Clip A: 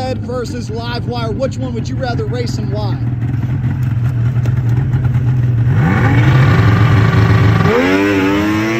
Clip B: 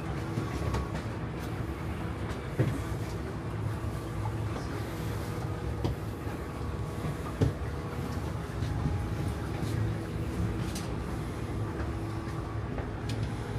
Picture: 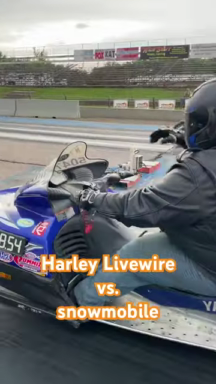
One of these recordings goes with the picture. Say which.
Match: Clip A